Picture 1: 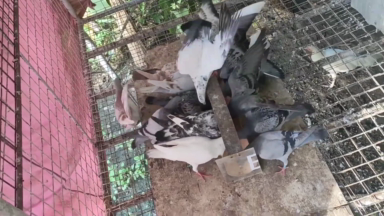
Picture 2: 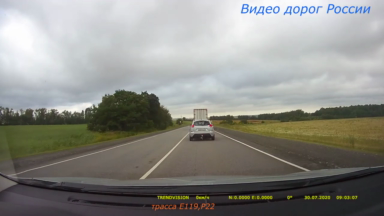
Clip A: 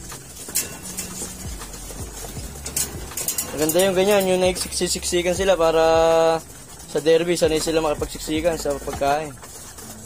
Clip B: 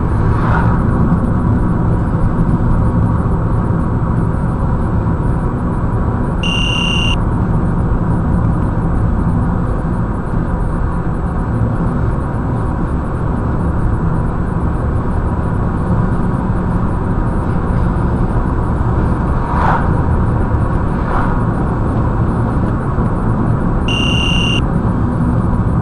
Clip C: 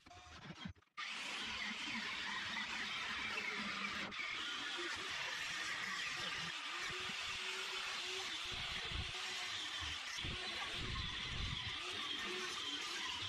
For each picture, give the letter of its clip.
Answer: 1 A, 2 B